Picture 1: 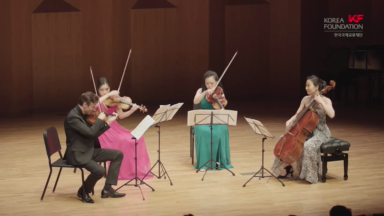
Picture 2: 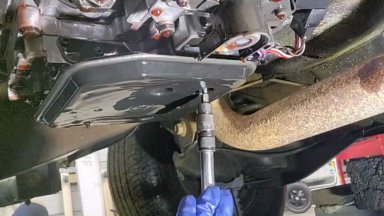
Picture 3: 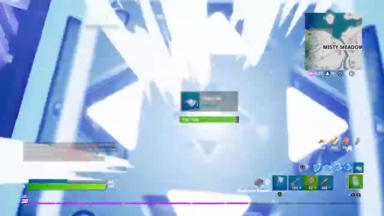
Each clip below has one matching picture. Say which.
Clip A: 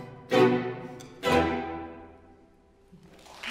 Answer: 1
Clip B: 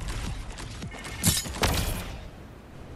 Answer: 3